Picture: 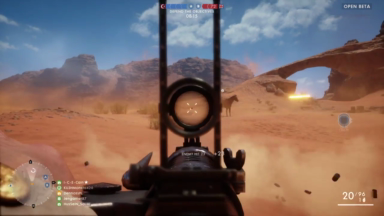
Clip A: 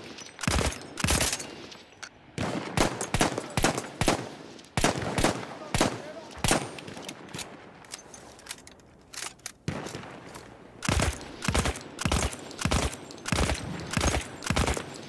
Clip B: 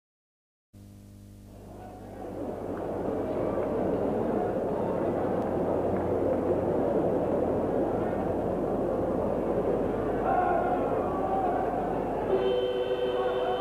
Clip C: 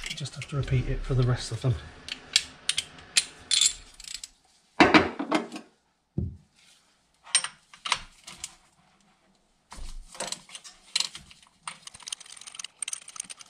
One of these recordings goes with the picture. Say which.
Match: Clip A